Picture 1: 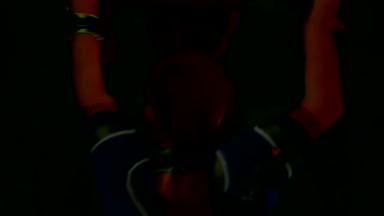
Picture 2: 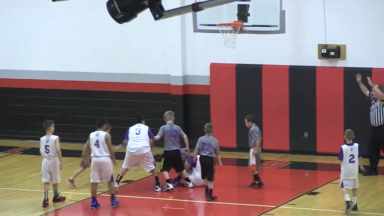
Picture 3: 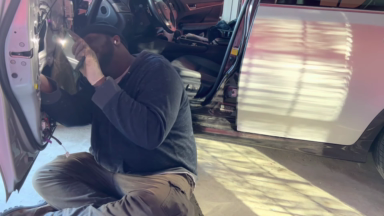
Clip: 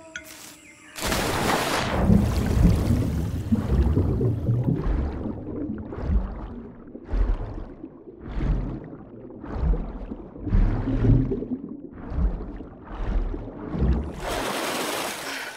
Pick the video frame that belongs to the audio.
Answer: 1